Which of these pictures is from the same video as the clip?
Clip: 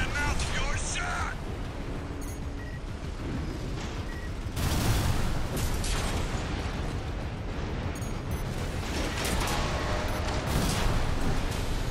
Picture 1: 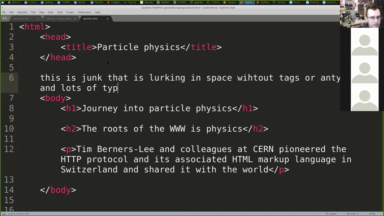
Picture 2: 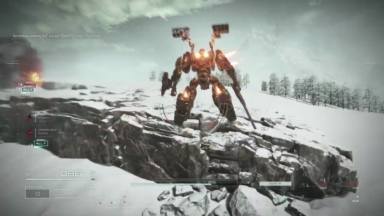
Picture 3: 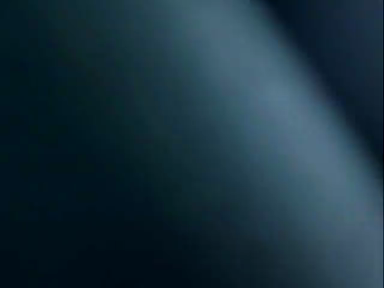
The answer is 2